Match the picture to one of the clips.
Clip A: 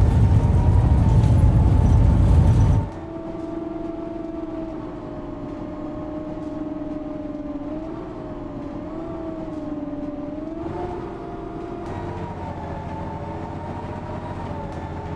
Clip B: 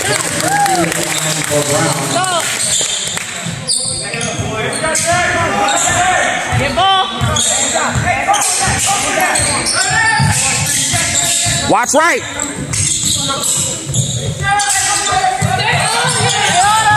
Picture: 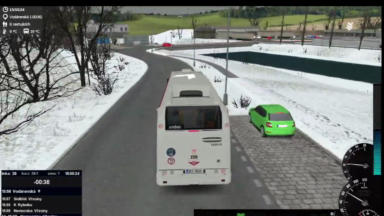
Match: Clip A